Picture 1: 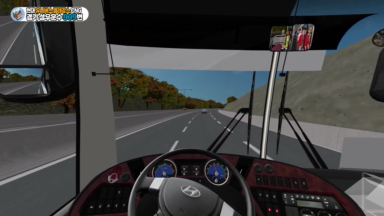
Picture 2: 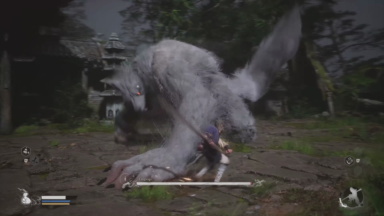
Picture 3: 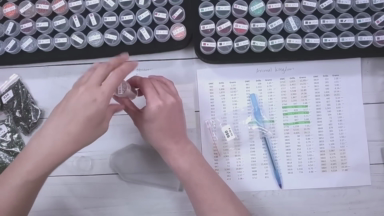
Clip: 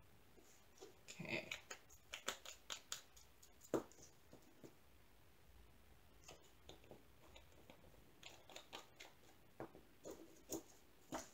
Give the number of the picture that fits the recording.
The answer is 3